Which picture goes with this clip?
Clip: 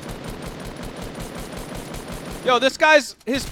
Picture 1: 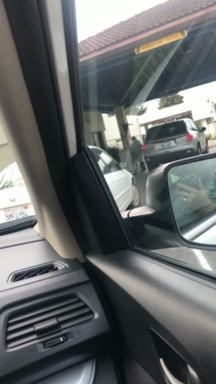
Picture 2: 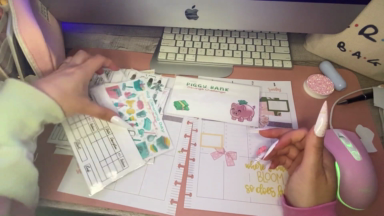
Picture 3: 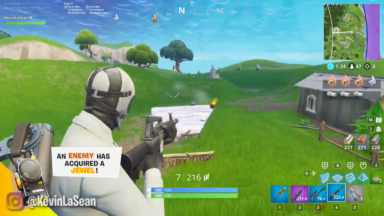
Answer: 3